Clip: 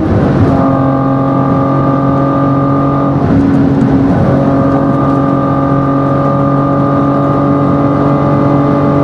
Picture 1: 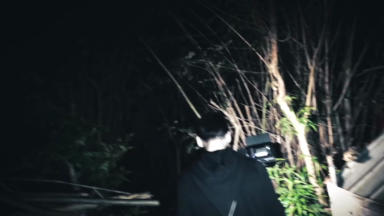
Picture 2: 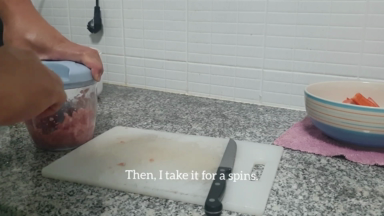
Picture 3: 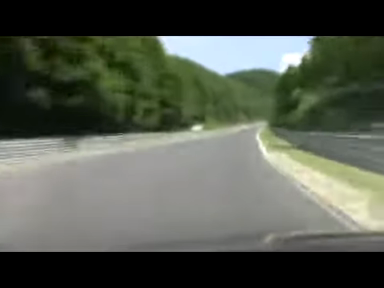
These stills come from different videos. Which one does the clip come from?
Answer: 3